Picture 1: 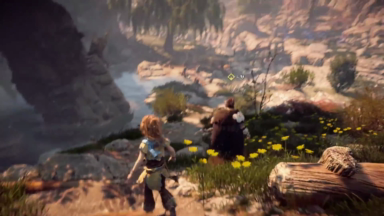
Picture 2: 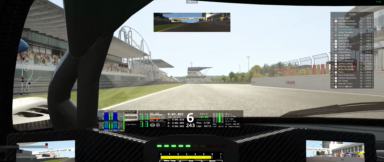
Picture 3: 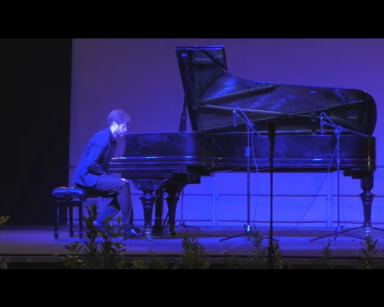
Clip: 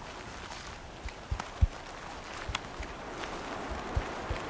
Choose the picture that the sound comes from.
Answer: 1